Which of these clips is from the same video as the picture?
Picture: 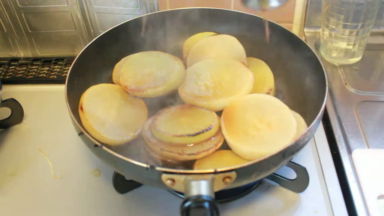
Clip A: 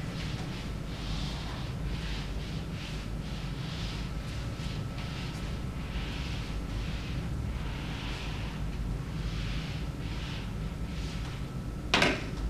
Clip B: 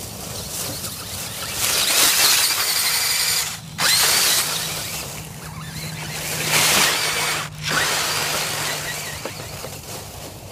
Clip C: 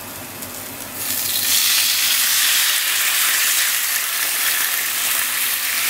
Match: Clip C